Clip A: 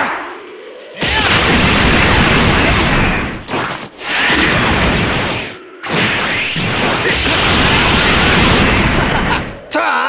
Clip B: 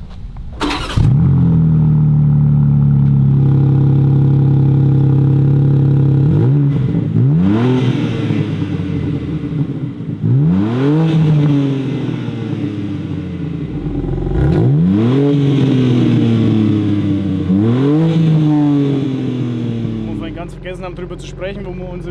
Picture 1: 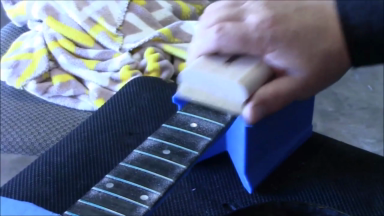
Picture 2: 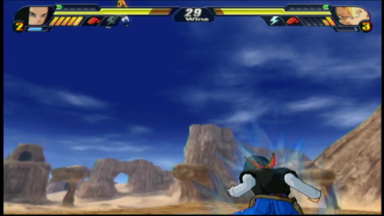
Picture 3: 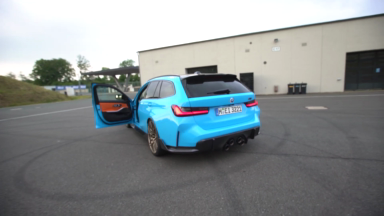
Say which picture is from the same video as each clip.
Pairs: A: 2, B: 3